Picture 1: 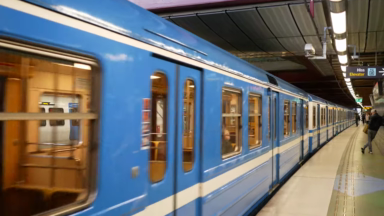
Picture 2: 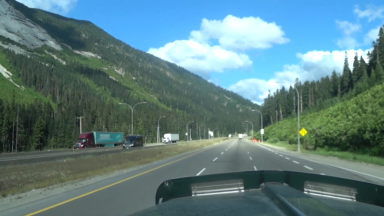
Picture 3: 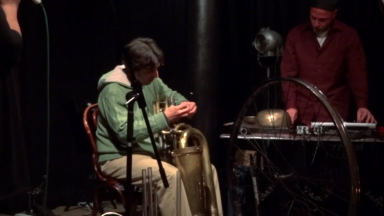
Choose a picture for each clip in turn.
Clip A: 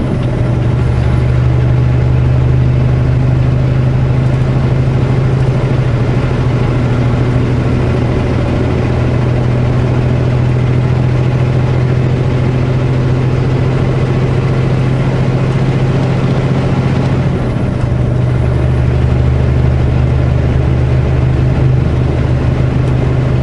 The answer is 2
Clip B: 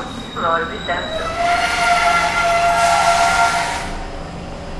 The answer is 1